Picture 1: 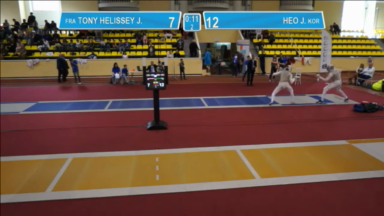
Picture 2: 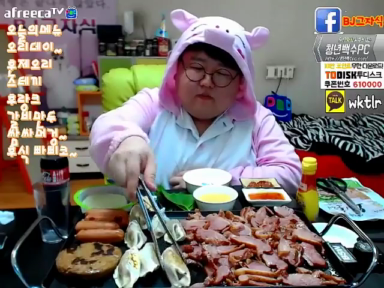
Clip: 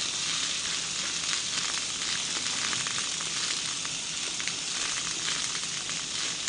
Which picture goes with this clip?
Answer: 2